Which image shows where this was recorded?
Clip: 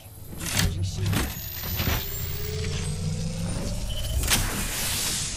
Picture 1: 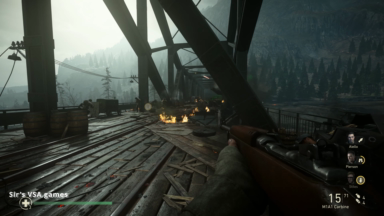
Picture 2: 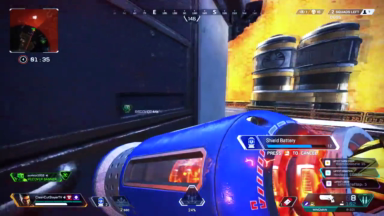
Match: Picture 2